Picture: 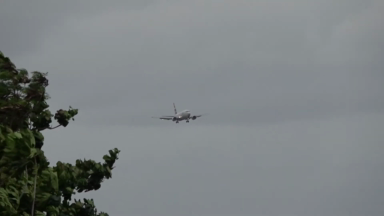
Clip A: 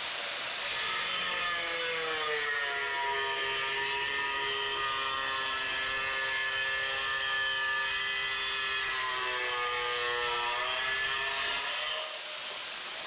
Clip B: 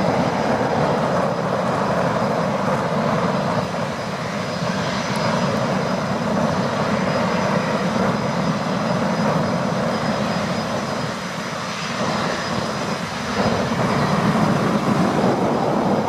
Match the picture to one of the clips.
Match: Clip B